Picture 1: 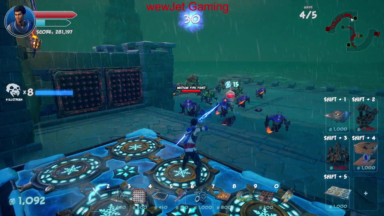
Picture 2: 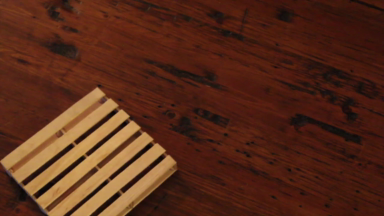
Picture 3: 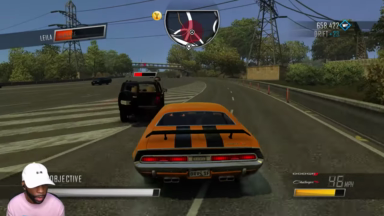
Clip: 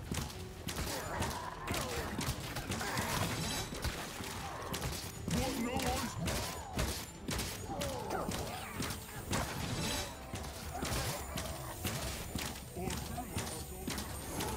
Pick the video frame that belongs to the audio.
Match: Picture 1